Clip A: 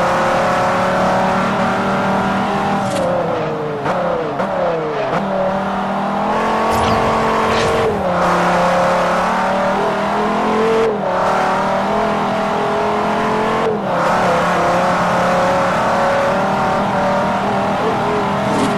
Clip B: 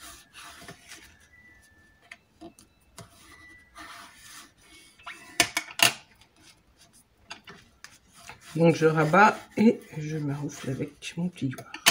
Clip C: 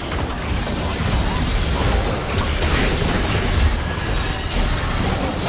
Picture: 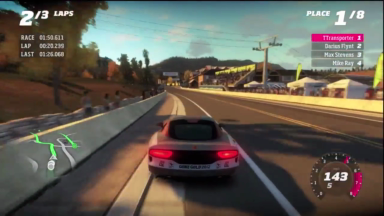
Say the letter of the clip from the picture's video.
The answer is A